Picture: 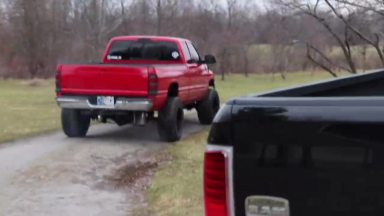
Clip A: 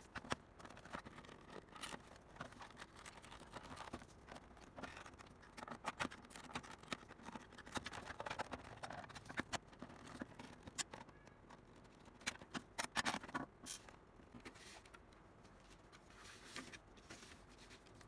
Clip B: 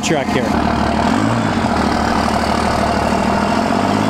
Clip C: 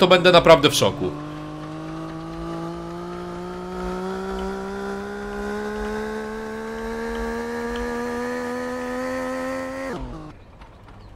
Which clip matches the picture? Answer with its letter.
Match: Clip B